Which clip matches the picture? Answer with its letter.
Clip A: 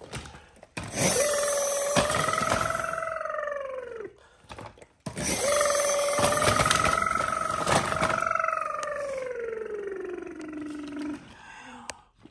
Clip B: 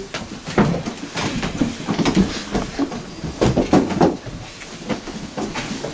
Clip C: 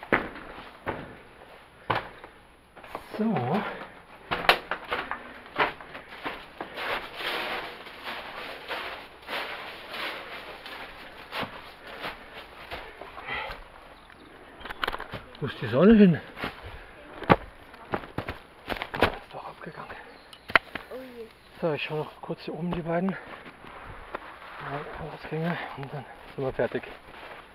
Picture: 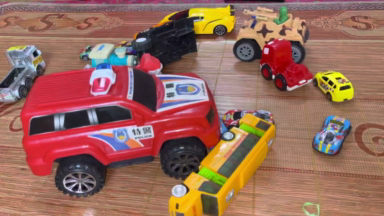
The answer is A